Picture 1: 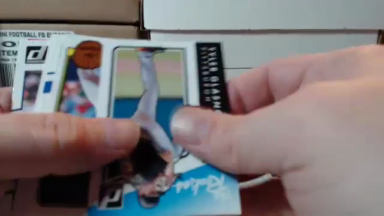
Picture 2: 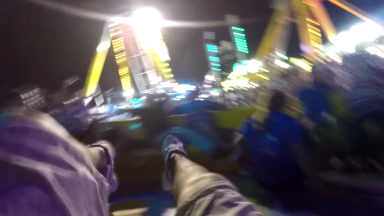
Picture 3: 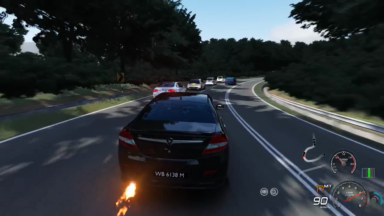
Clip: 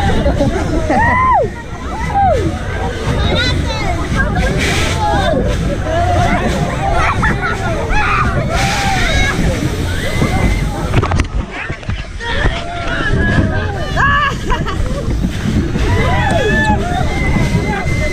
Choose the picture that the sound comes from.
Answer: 2